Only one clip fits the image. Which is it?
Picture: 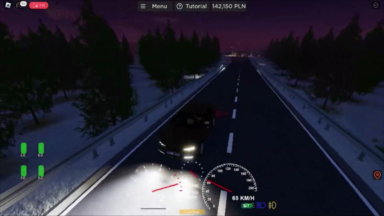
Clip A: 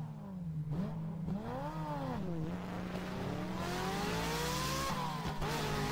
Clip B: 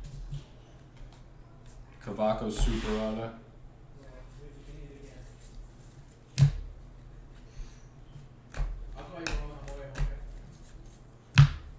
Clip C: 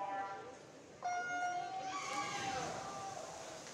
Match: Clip A